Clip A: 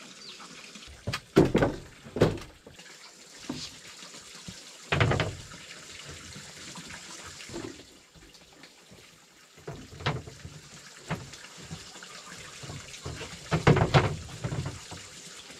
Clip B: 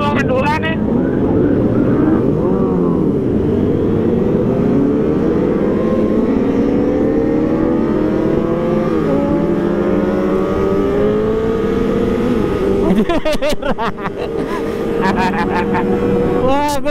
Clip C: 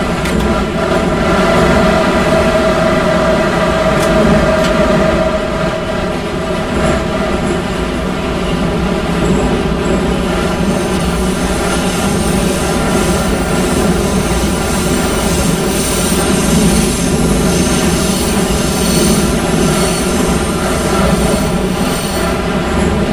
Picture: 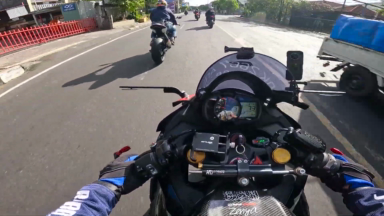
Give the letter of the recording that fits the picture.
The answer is B